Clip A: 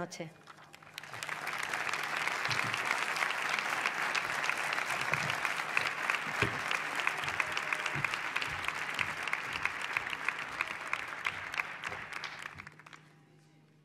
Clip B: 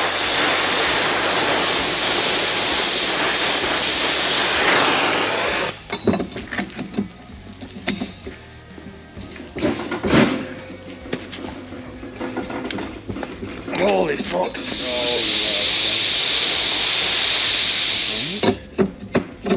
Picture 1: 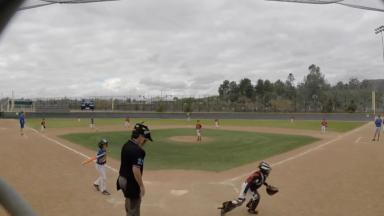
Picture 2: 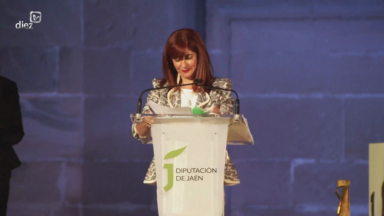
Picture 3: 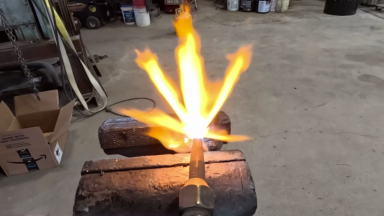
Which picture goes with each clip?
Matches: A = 2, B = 3